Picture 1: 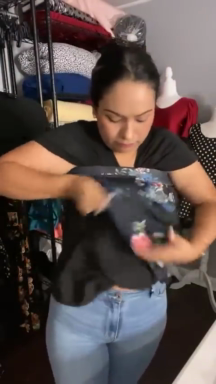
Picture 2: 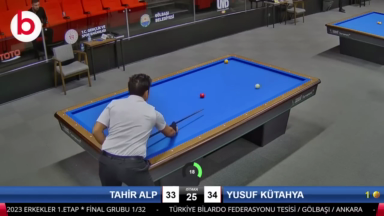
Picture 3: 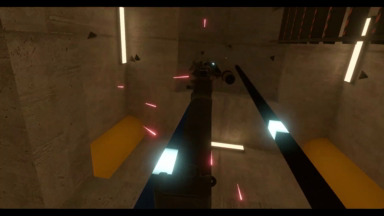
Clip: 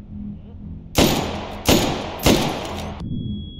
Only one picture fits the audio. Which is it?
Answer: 3